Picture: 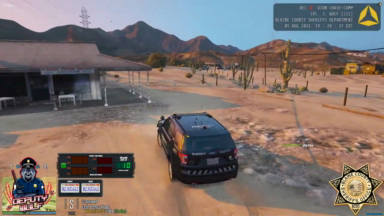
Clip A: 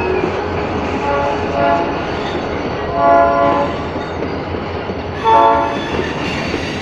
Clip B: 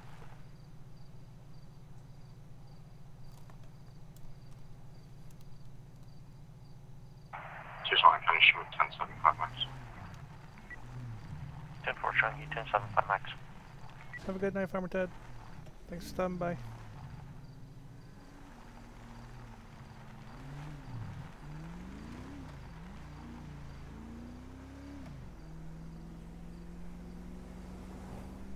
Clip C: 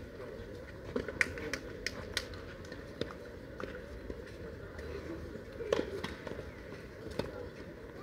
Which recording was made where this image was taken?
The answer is B